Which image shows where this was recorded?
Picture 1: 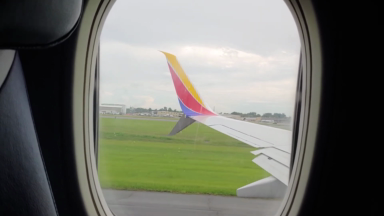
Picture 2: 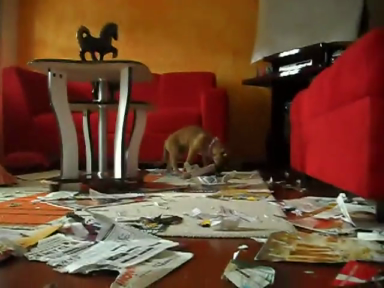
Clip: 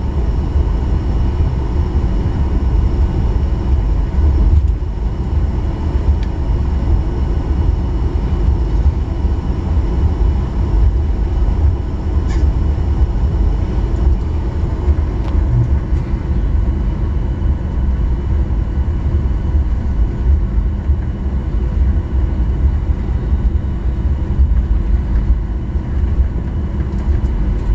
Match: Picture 1